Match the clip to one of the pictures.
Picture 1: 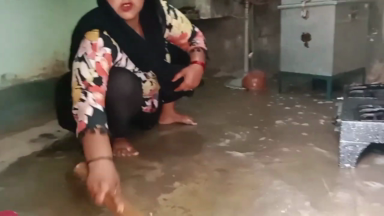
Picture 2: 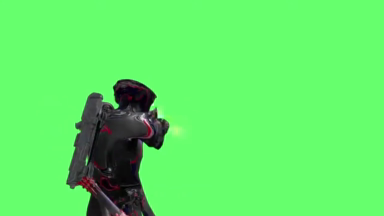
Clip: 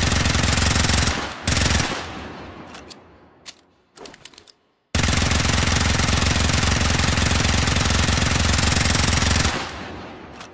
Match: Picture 2